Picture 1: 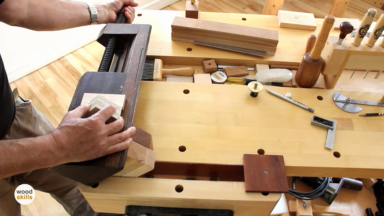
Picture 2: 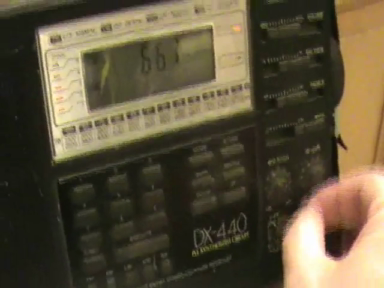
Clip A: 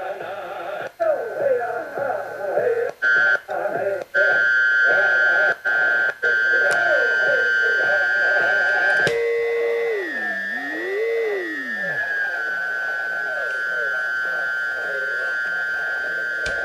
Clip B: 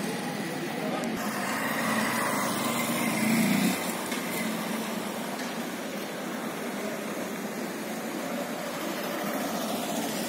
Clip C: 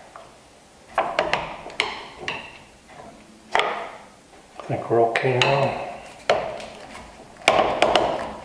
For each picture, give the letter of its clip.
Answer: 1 C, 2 A